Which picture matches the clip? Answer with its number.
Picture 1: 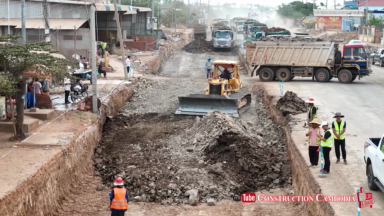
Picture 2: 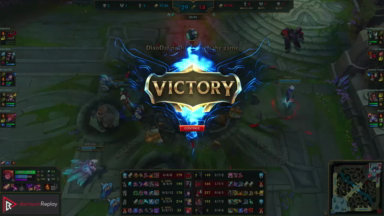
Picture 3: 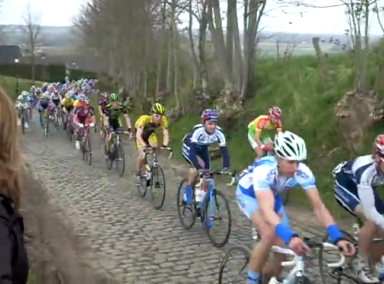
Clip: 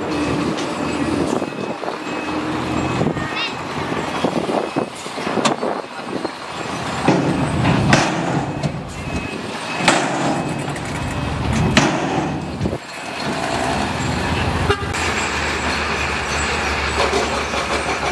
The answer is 1